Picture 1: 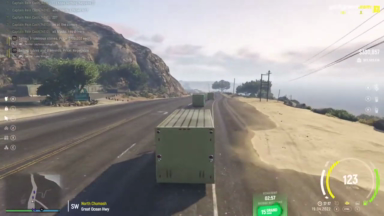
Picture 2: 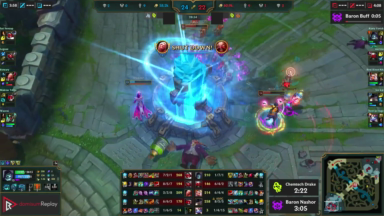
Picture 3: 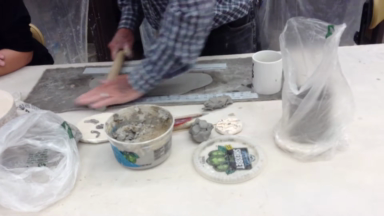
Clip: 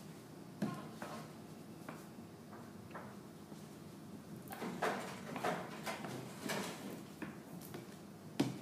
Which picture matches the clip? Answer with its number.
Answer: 3